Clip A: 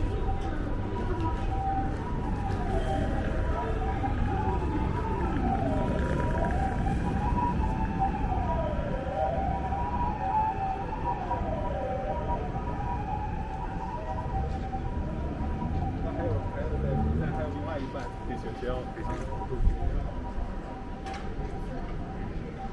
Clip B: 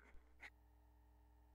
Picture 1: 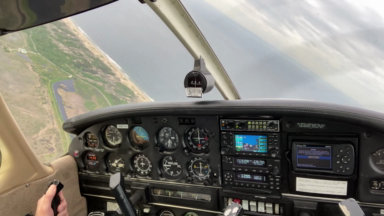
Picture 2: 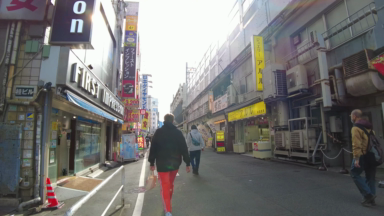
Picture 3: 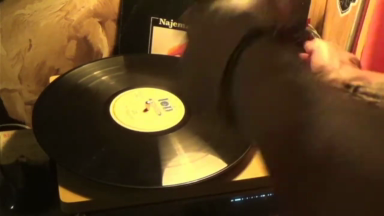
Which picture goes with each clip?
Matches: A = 2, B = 3